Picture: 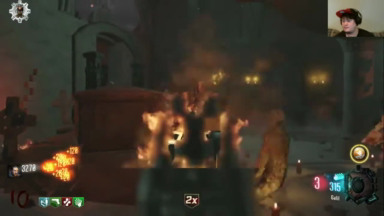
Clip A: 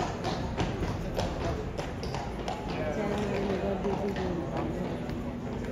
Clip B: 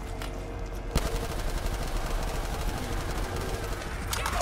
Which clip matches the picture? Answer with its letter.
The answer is B